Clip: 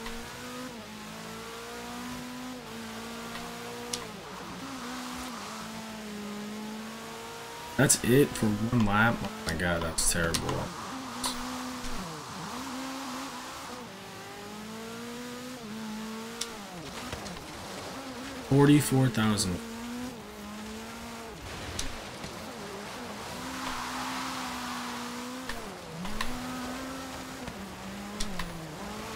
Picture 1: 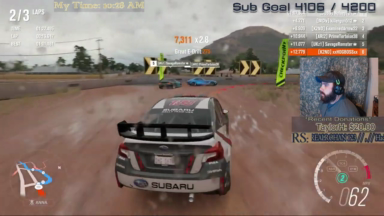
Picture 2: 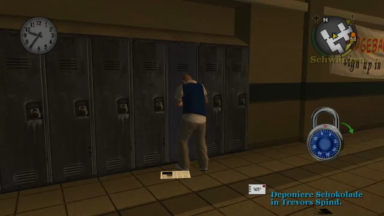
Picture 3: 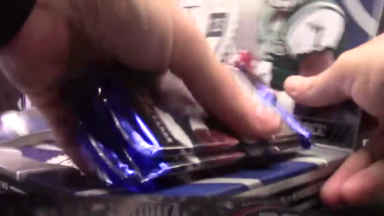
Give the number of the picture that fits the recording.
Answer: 1